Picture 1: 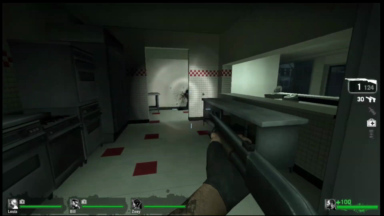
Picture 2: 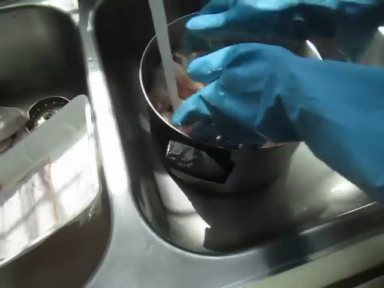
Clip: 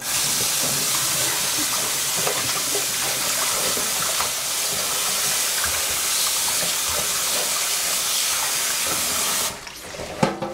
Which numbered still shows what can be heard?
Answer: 2